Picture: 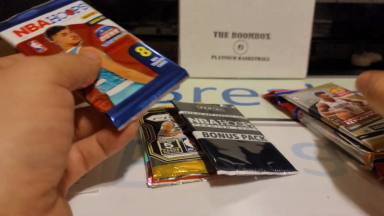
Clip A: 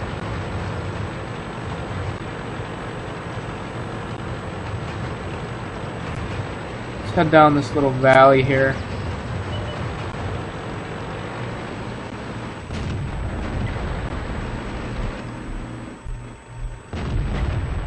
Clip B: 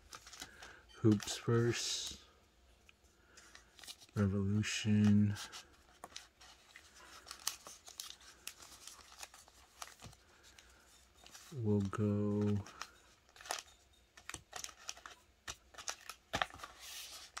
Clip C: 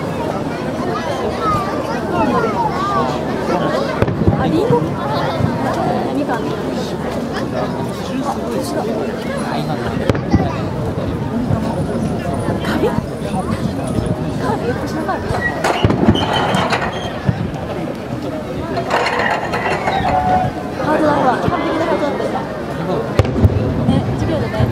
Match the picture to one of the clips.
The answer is B